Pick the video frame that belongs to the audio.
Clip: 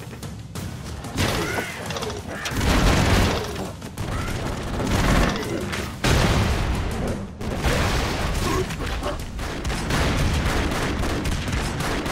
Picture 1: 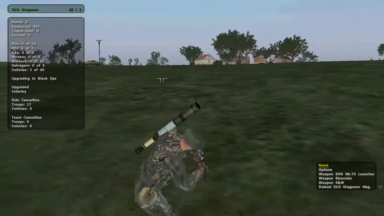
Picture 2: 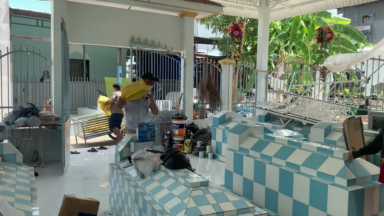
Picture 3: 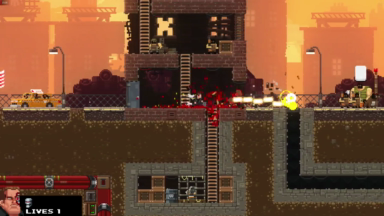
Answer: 3